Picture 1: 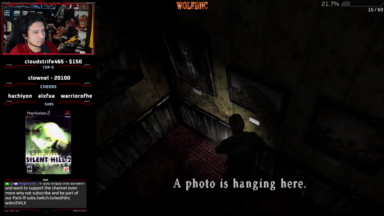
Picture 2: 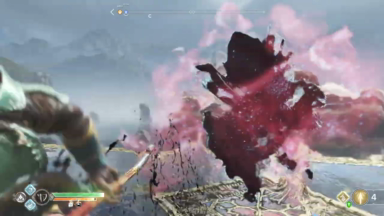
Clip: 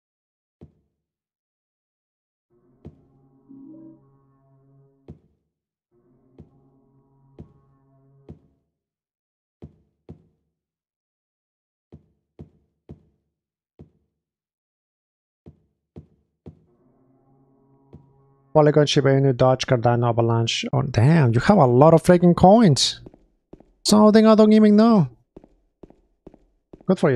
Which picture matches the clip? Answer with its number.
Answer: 1